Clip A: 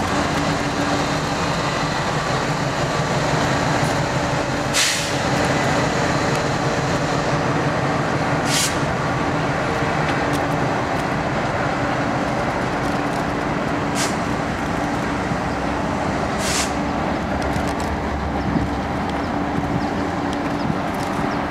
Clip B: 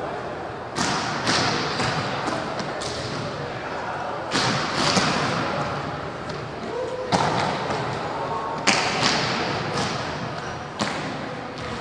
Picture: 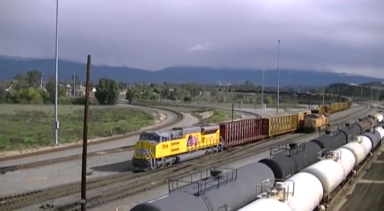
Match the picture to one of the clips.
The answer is A